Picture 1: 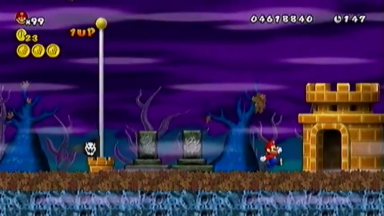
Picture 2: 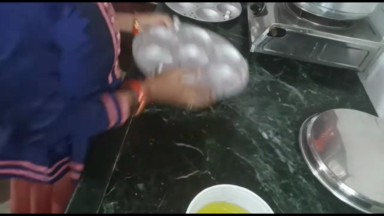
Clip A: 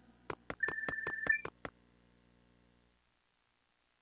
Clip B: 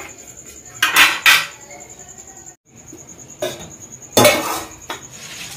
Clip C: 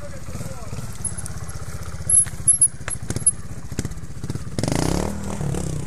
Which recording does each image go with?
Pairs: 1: A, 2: B